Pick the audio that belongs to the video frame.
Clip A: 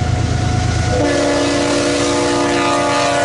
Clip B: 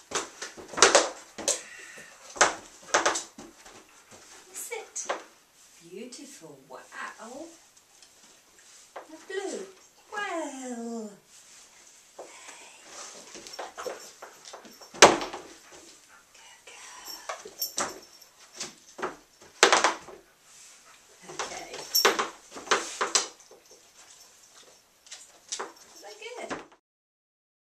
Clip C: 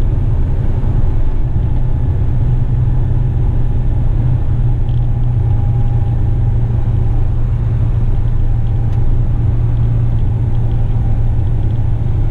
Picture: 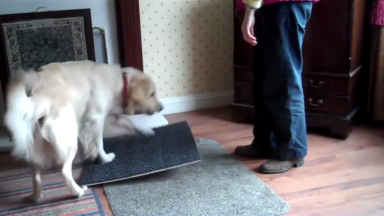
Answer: B